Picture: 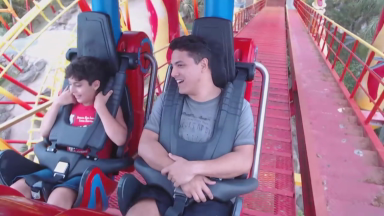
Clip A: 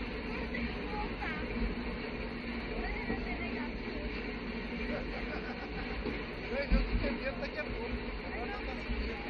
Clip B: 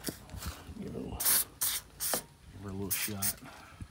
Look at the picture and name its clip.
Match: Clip A